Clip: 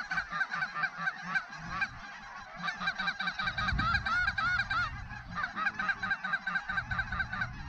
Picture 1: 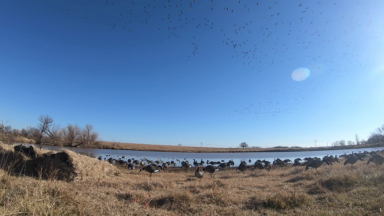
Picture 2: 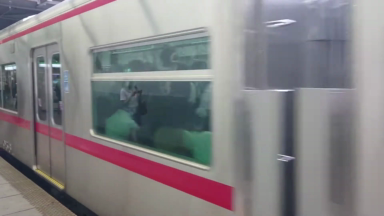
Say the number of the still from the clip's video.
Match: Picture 1